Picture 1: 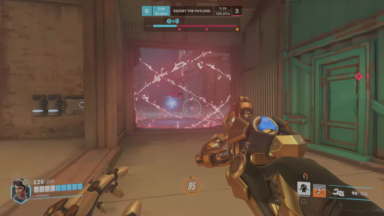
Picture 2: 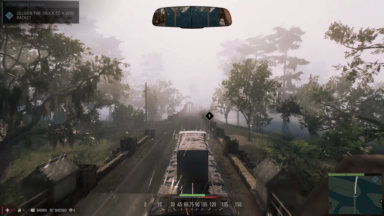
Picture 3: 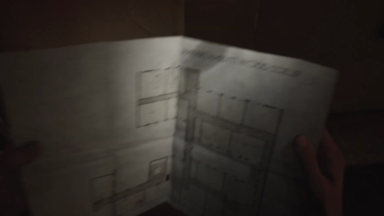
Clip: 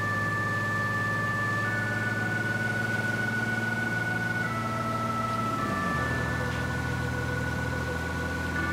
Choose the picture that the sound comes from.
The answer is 2